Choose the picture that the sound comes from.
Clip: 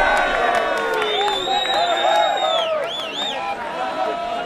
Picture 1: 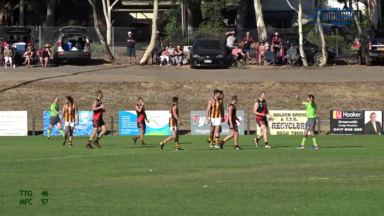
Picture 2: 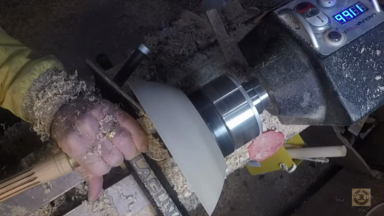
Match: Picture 1